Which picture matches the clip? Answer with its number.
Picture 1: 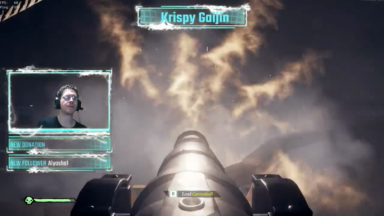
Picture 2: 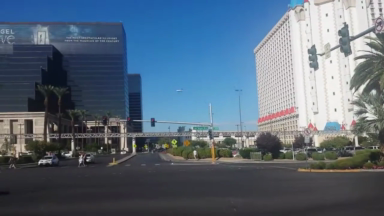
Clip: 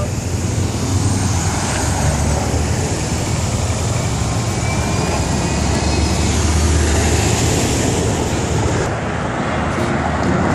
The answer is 2